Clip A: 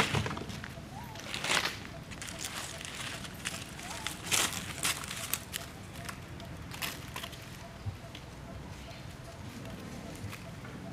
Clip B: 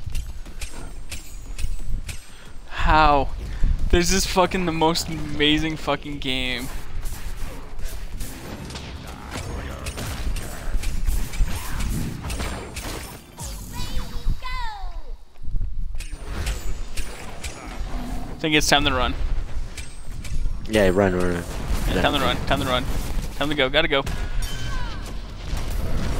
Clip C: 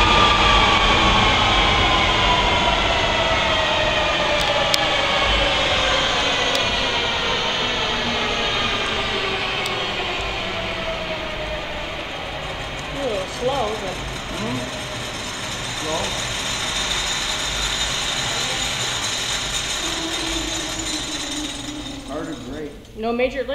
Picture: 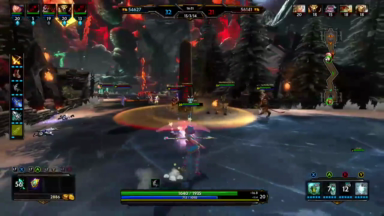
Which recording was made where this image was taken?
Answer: B